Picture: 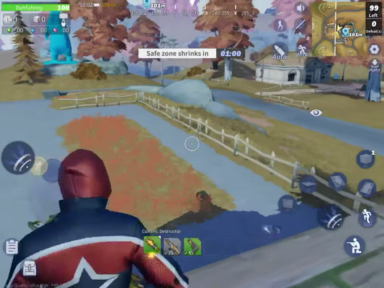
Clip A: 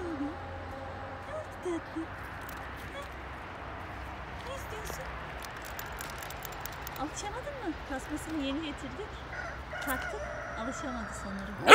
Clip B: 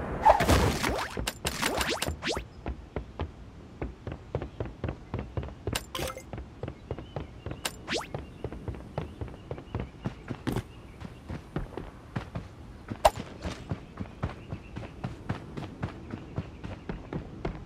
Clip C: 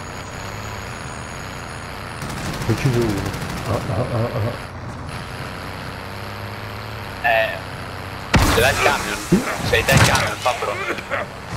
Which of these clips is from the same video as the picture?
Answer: B